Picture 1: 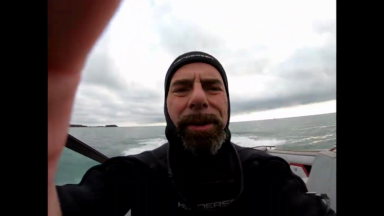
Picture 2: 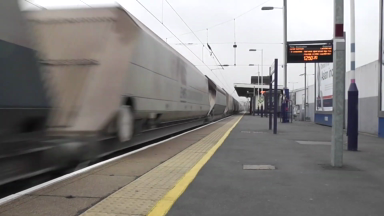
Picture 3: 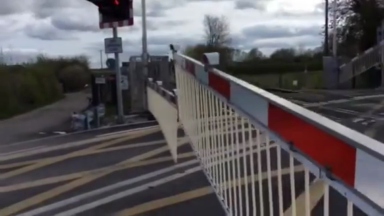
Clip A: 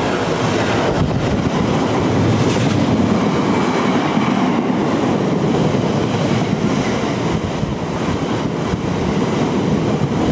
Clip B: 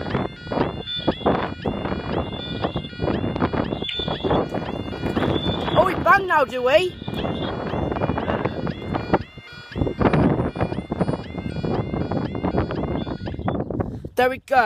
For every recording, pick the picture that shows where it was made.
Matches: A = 2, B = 3